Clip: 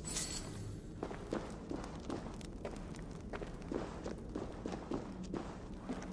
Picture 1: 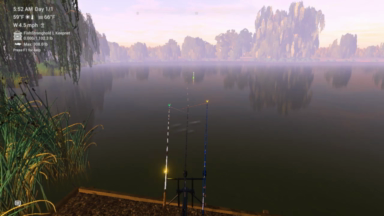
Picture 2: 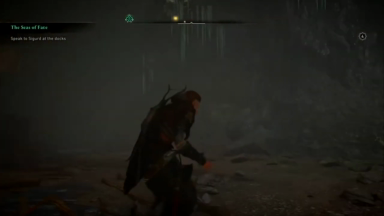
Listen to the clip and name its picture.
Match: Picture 2